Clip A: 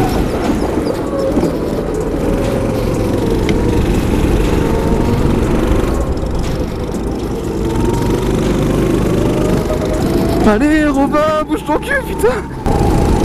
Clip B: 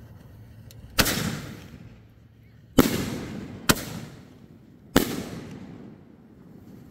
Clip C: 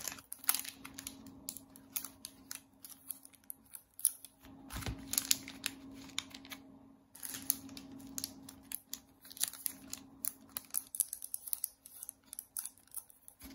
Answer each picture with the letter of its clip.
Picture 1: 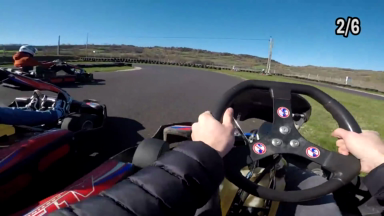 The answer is A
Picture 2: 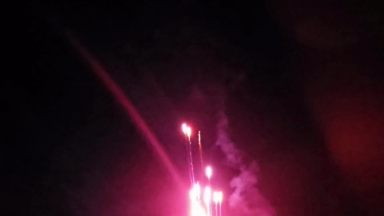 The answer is B